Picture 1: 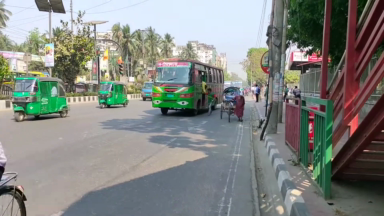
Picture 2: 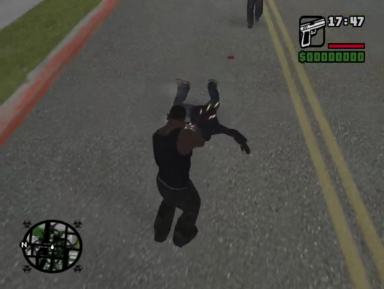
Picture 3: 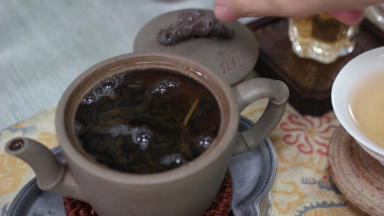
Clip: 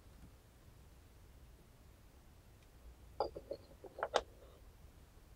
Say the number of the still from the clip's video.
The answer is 3